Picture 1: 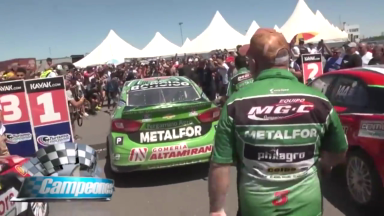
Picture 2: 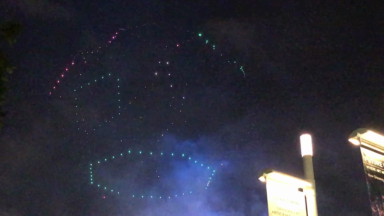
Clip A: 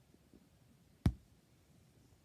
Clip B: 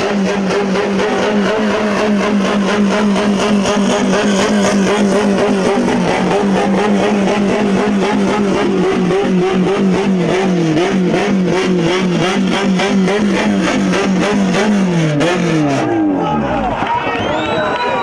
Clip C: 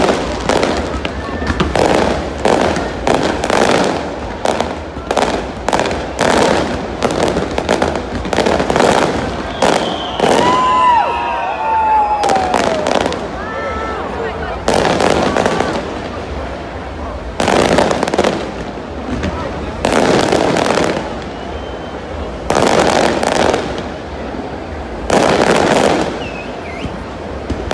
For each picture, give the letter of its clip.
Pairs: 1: B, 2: C